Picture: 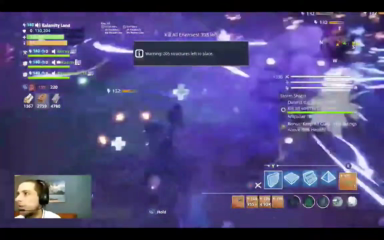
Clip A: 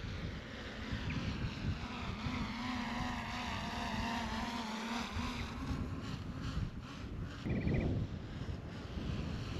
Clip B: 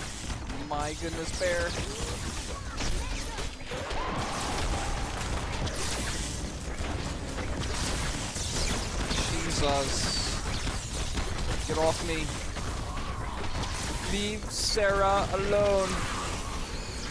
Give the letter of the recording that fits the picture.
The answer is B